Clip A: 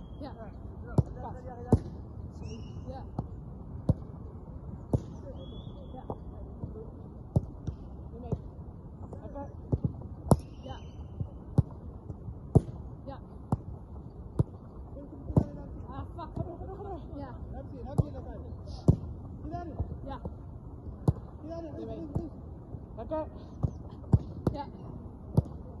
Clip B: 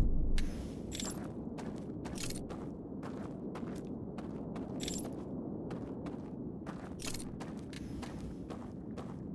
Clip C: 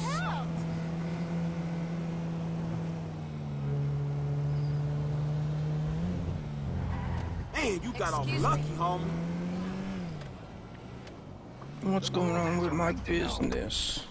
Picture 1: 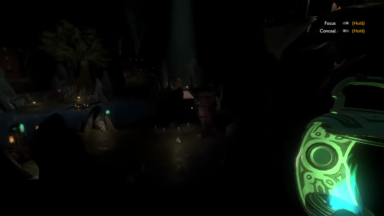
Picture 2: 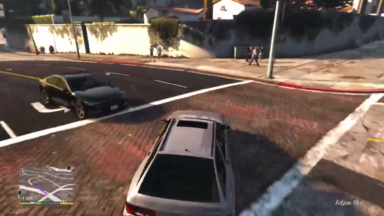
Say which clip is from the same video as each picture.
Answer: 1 B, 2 C